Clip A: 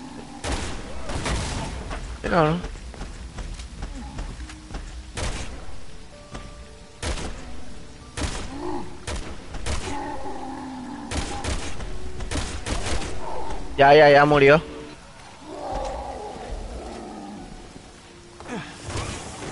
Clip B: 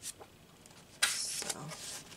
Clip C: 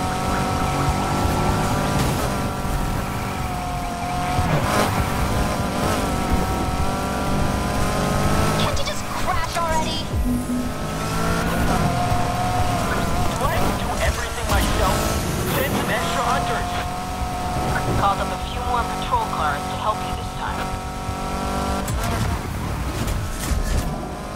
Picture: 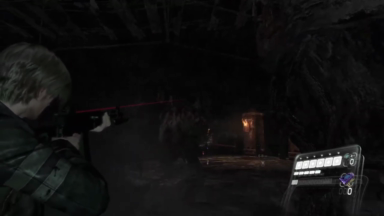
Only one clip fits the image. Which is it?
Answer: A